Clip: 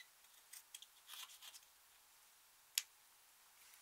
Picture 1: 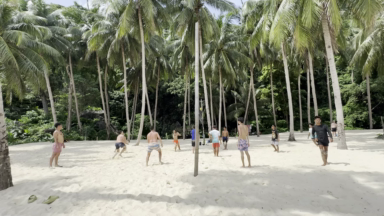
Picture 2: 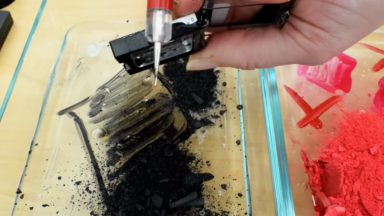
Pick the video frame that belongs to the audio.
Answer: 2